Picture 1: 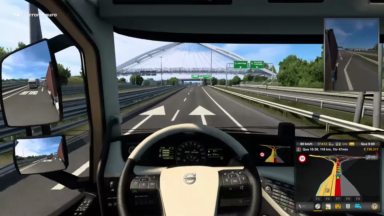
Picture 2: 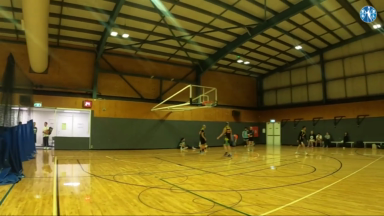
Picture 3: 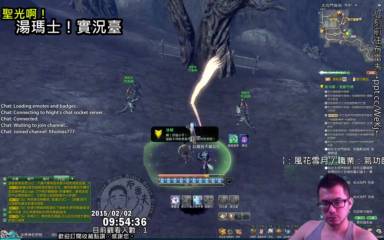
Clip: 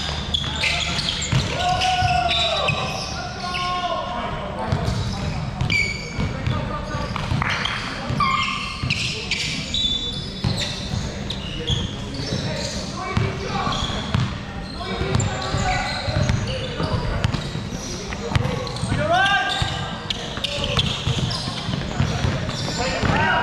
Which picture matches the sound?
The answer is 2